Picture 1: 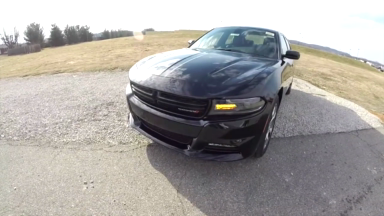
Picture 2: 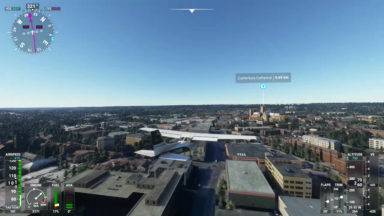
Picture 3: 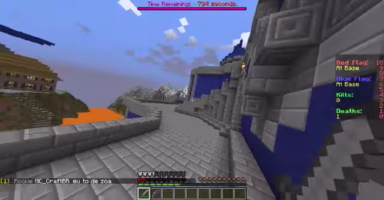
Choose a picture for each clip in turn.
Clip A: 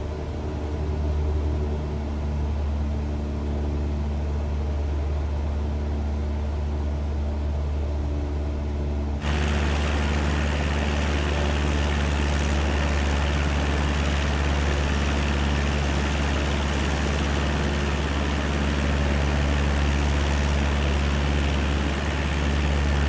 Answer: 2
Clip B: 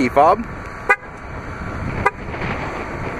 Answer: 1